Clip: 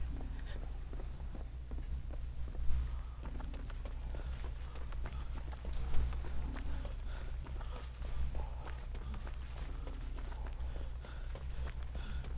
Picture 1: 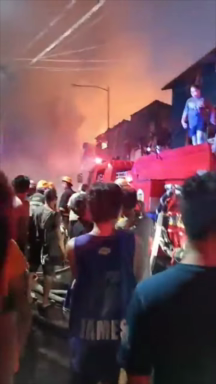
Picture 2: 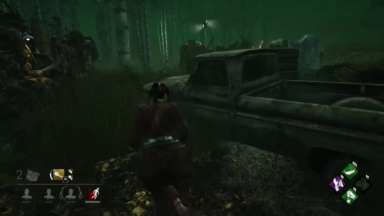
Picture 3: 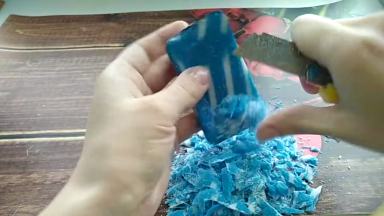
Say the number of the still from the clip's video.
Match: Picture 2